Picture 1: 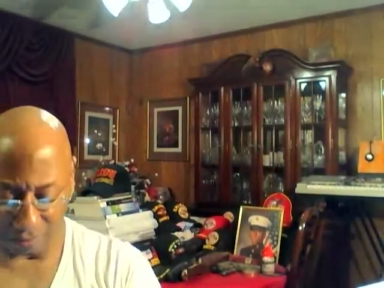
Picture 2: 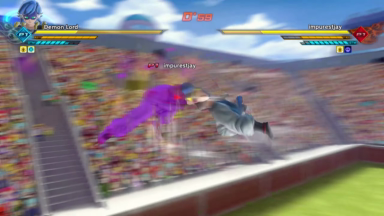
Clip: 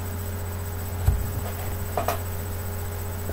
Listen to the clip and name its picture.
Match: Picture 1